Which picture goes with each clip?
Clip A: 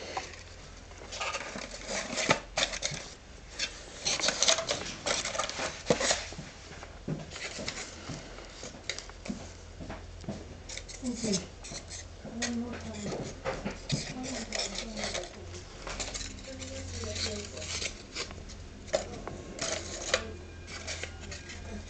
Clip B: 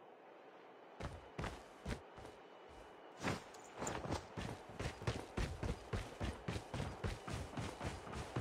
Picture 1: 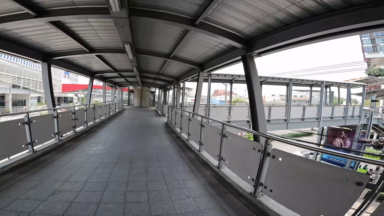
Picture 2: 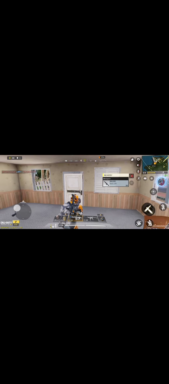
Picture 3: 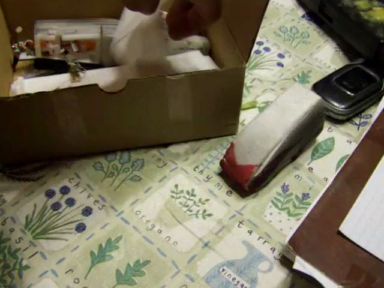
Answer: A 3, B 2